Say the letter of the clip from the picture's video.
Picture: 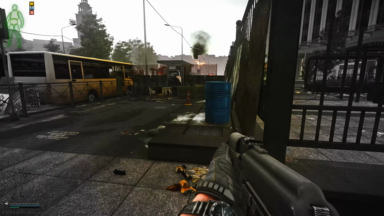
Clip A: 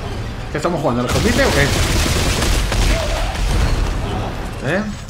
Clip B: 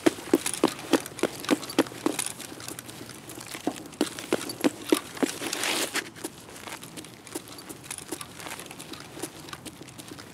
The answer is B